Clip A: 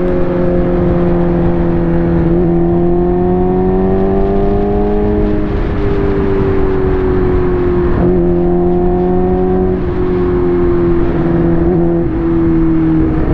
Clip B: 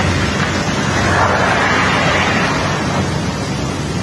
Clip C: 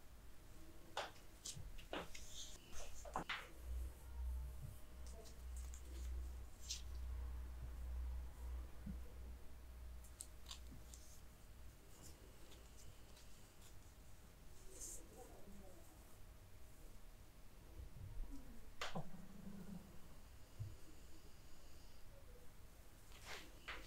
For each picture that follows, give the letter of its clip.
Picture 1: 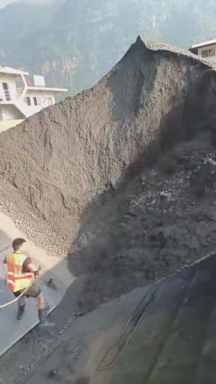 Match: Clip B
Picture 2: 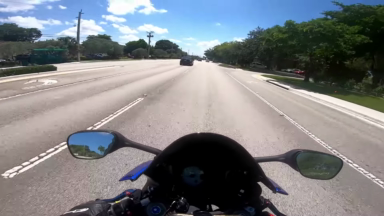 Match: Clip A